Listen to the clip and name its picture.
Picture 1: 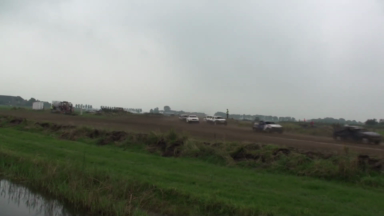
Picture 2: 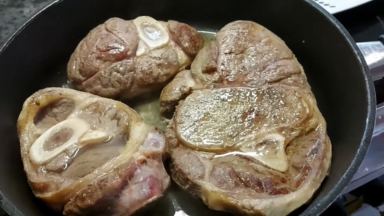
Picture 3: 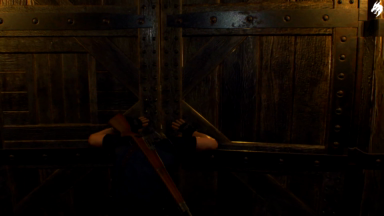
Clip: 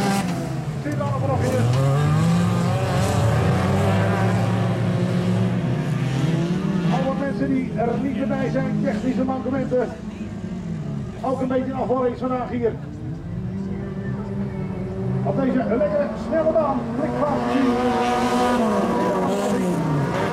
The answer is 1